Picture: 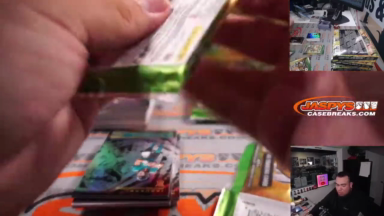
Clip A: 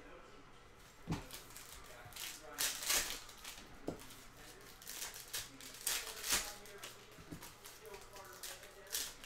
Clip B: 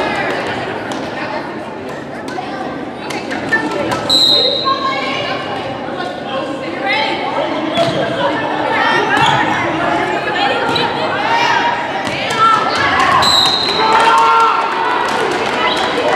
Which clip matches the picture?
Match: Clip A